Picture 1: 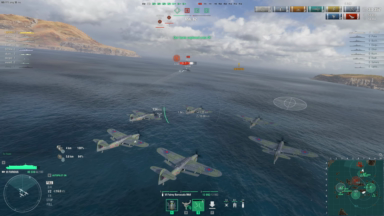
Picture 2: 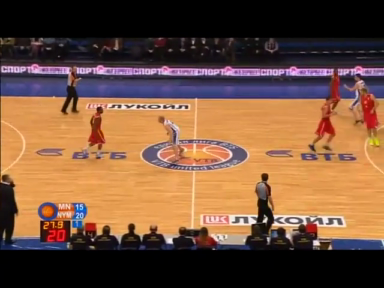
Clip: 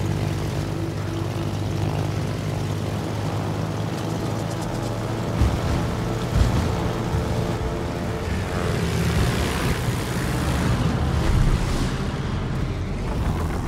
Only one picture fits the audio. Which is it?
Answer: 1